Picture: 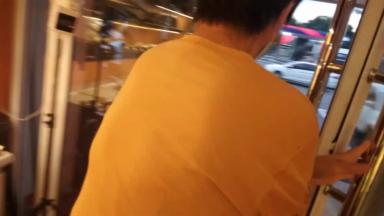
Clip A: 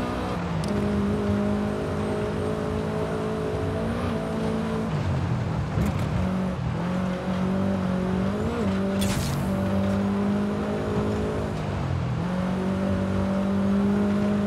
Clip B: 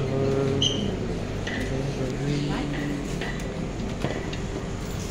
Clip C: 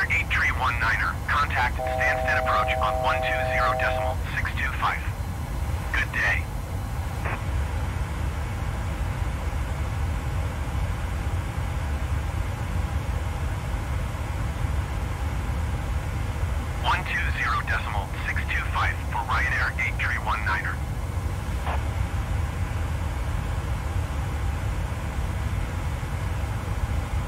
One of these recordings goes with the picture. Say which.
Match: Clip B